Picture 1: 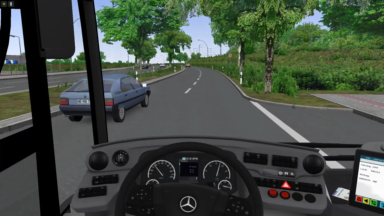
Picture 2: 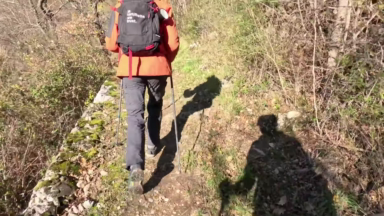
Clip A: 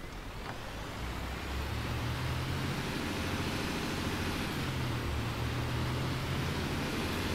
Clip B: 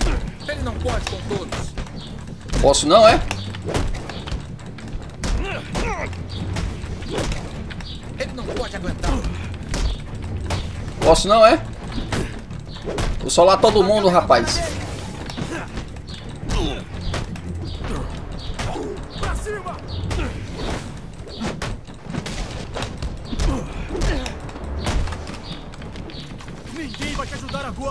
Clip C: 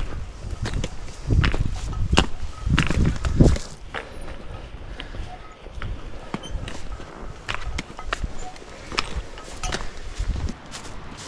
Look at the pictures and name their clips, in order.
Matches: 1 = A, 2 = C